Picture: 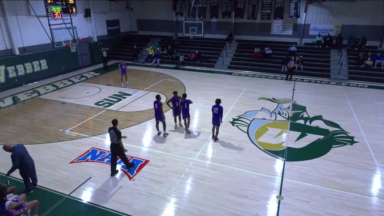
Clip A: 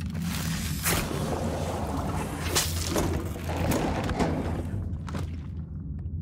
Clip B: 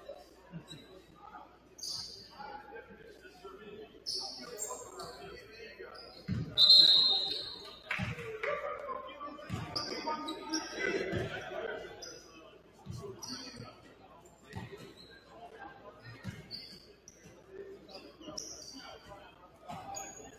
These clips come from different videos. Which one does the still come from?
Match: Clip B